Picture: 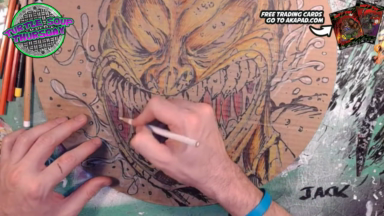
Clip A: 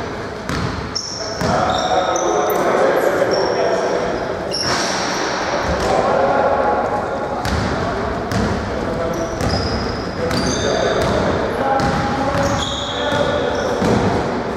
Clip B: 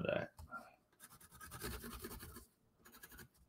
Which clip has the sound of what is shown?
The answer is B